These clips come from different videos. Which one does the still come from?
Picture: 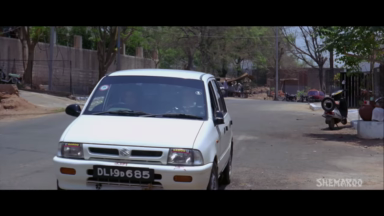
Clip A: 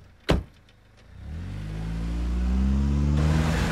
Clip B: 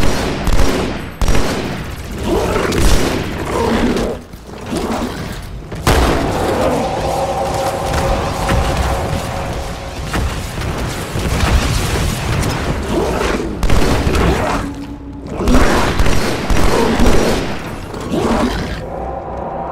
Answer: A